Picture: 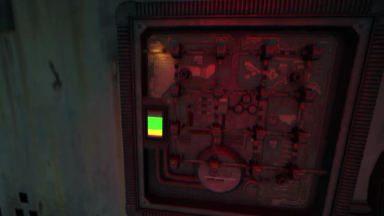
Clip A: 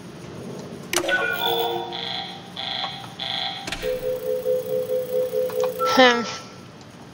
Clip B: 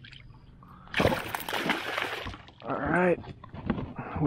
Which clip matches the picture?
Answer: A